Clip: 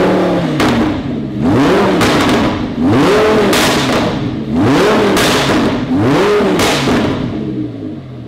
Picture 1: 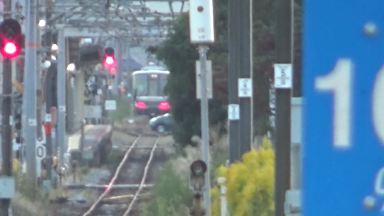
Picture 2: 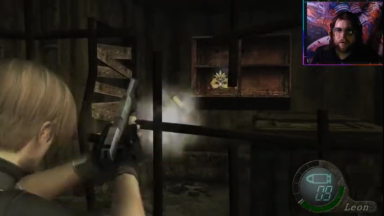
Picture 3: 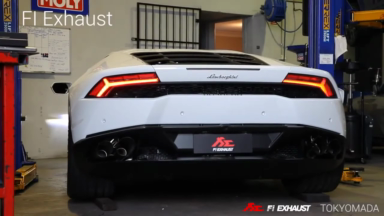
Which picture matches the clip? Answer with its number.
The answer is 3